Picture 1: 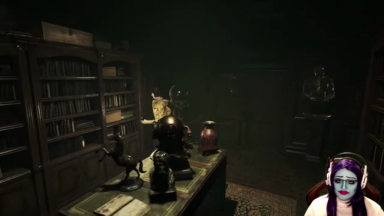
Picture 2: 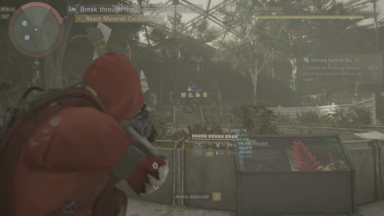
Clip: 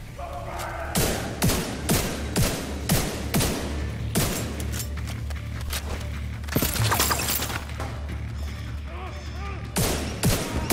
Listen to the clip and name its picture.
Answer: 2